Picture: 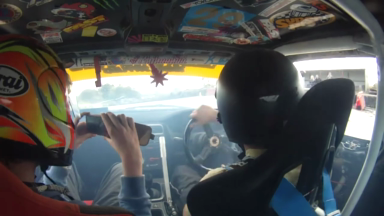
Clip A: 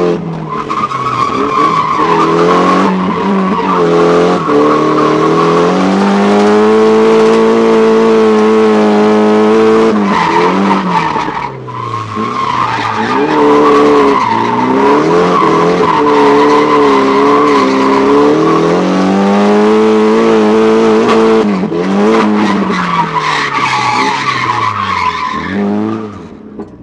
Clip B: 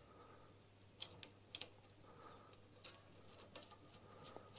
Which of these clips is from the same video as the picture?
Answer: A